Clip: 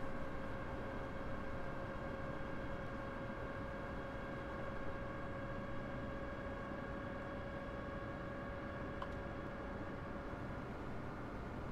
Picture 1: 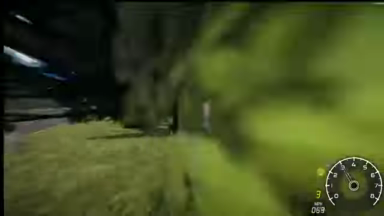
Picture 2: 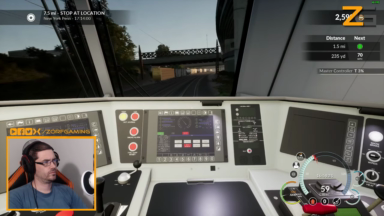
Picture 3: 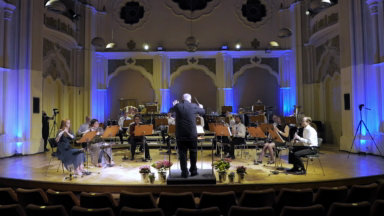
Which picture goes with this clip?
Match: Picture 2